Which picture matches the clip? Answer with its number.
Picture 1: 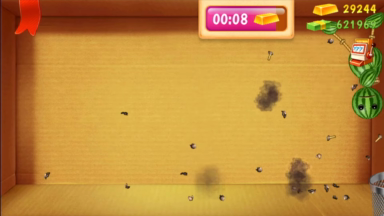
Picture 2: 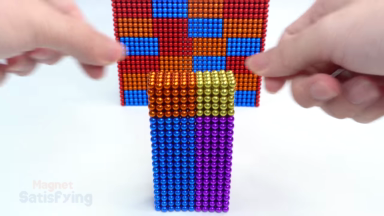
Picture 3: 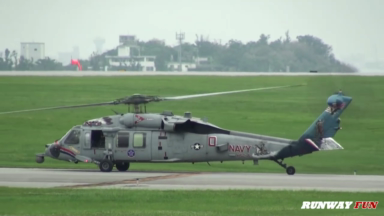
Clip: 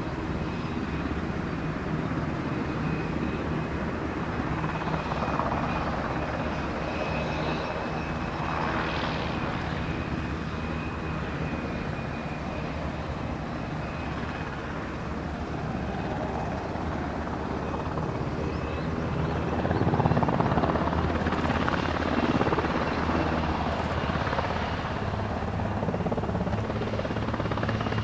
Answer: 3